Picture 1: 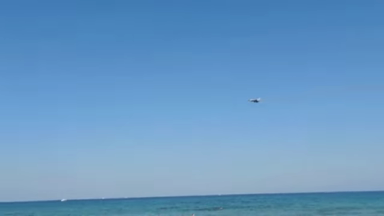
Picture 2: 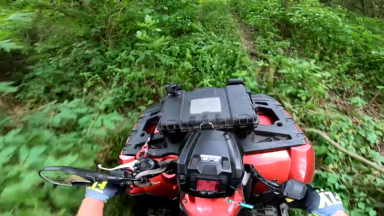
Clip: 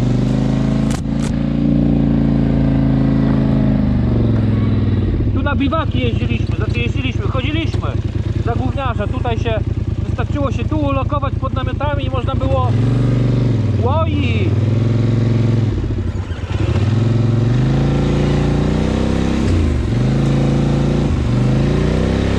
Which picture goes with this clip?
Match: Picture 2